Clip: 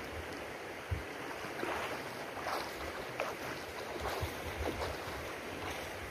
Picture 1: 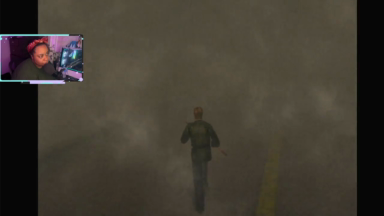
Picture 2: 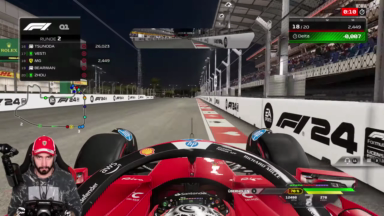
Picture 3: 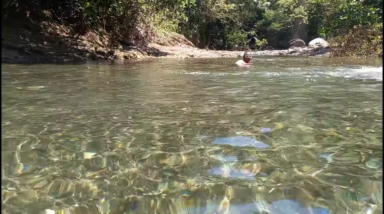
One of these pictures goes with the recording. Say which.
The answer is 3